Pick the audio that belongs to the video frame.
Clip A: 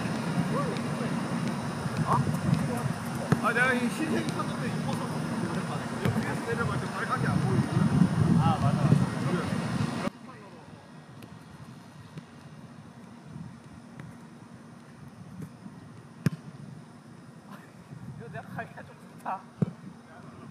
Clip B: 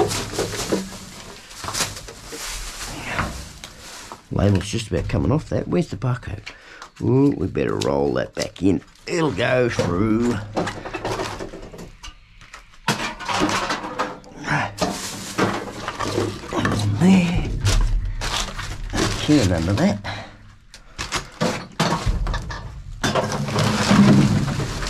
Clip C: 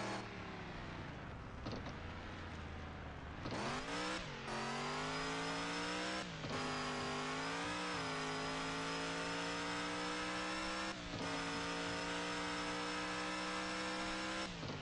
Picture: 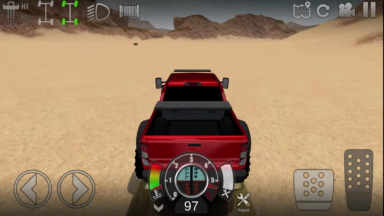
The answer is C